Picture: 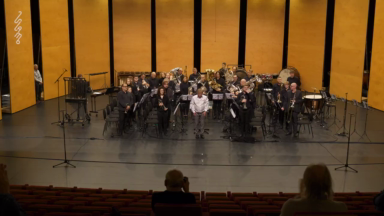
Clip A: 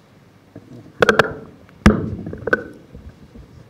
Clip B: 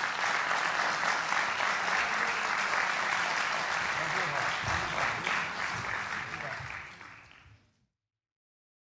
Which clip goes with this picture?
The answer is B